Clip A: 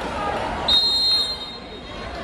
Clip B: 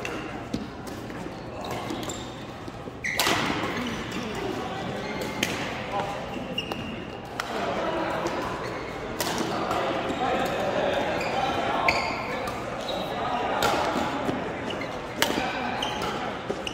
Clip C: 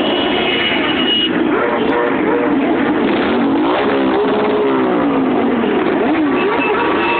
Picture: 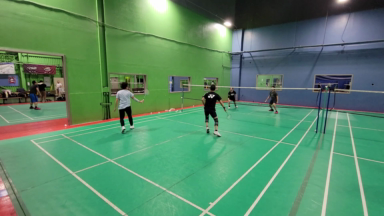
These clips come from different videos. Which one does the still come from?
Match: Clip B